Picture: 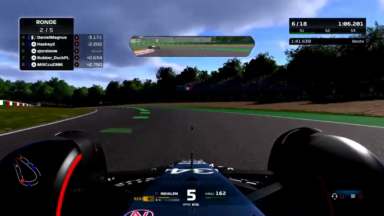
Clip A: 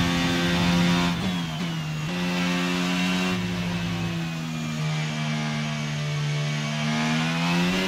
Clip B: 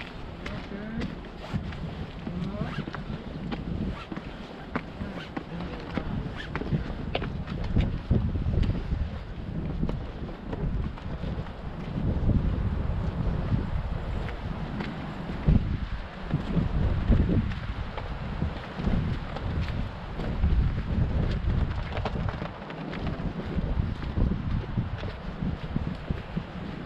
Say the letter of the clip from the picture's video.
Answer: A